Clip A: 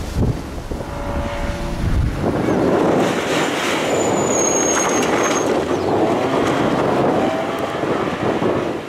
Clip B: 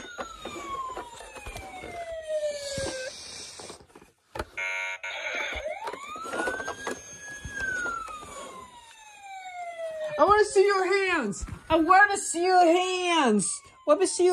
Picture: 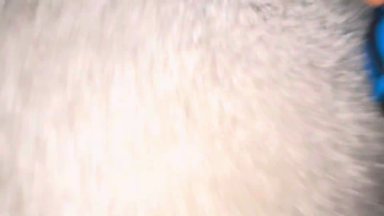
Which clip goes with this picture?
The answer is B